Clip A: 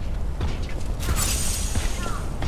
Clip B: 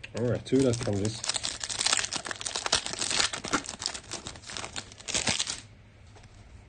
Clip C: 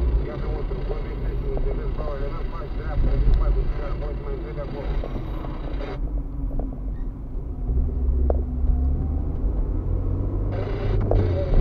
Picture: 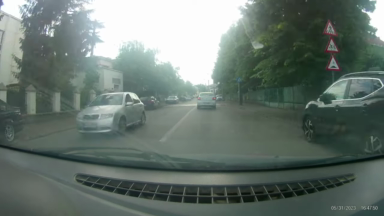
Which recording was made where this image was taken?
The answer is C